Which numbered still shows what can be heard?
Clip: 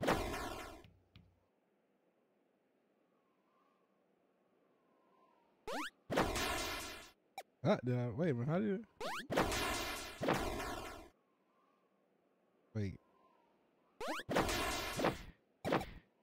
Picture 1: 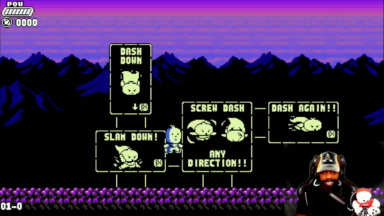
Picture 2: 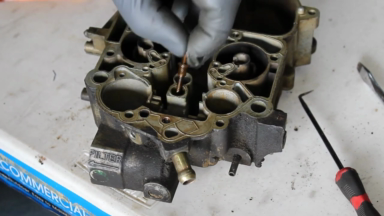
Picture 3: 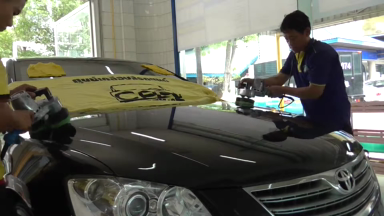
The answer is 1